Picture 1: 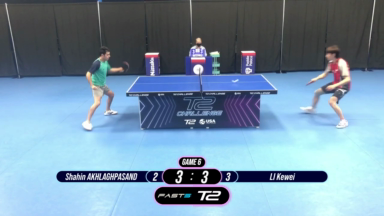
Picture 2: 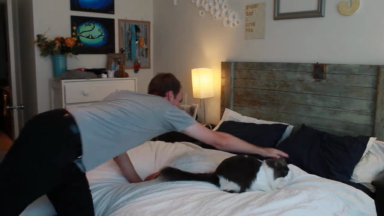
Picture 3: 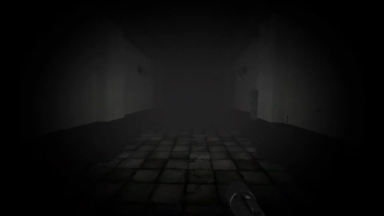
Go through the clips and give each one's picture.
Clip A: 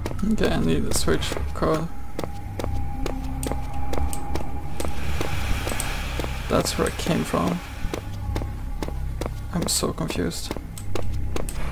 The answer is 3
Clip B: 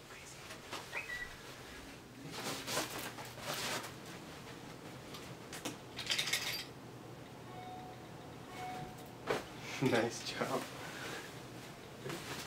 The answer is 2